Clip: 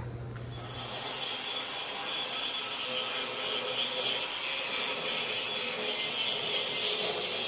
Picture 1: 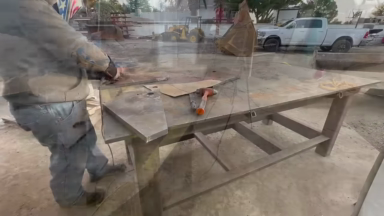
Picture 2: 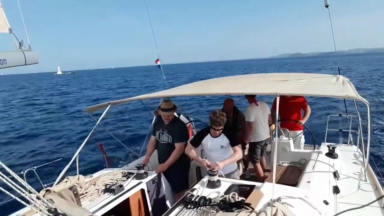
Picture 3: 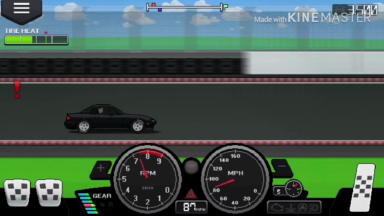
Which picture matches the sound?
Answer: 1